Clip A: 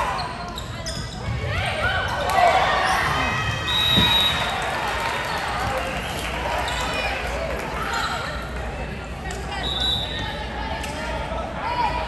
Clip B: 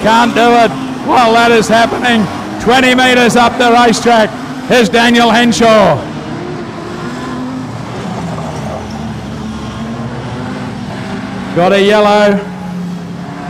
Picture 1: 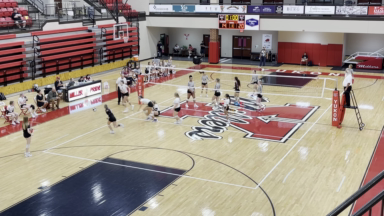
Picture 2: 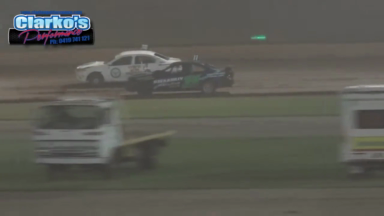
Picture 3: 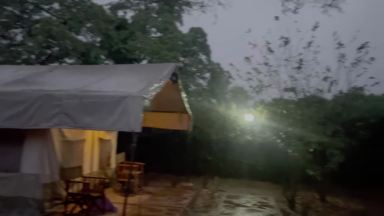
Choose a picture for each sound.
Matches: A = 1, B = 2